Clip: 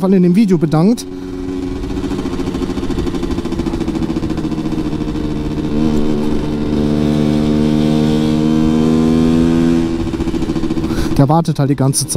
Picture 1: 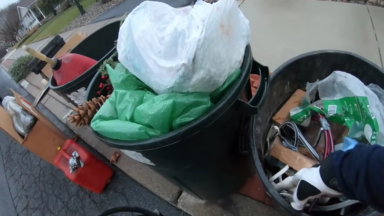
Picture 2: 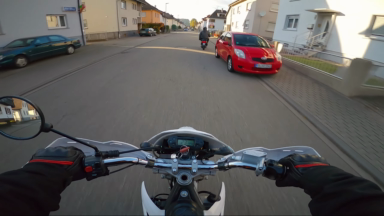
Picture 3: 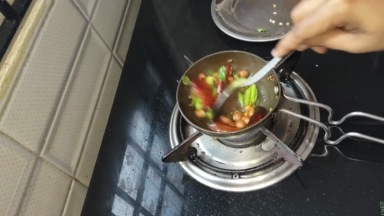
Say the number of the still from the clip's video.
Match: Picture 2